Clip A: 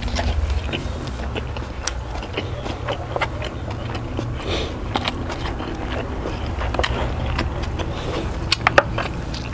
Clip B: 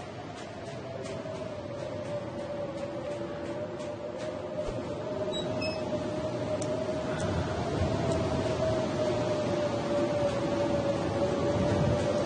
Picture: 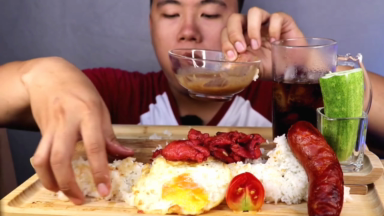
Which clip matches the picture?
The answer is A